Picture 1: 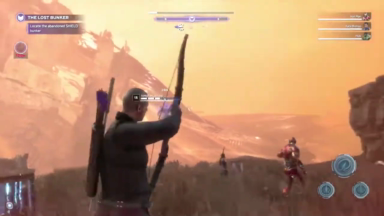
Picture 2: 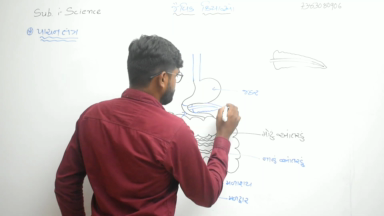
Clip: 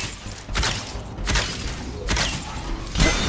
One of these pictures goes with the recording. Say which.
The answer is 1